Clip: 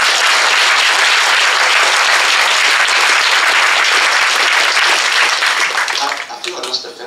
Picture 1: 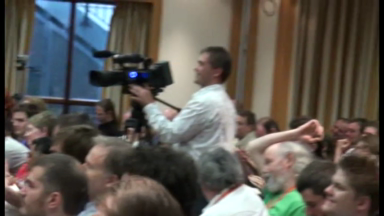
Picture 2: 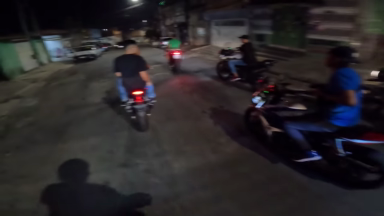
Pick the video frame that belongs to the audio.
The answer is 1